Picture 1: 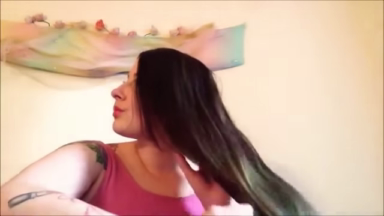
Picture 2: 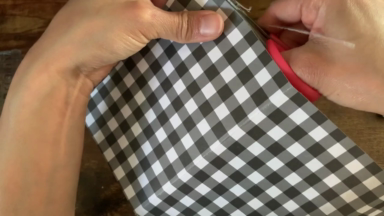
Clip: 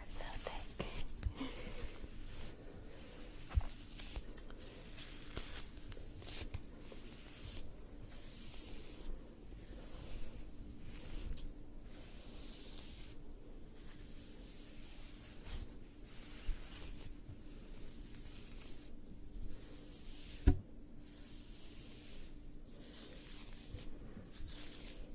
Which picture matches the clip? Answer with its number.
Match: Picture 1